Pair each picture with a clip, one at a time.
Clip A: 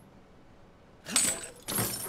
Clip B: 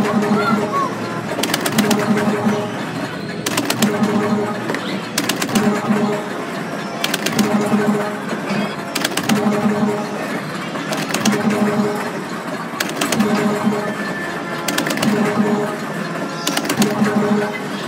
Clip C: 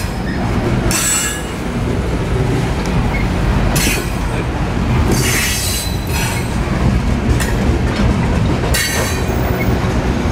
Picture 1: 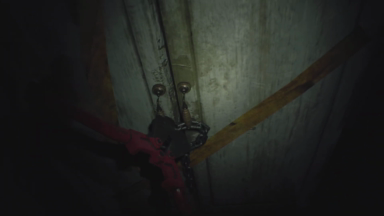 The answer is A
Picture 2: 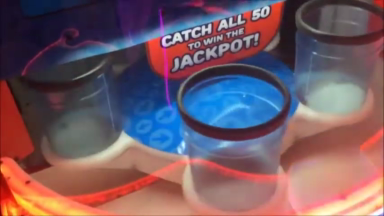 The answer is B